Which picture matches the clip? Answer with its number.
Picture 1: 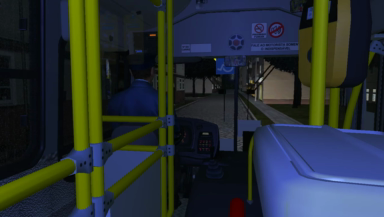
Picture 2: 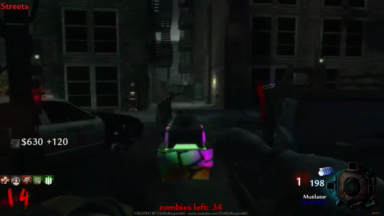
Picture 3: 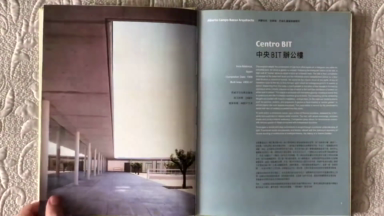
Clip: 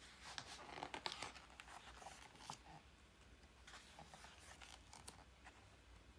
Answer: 3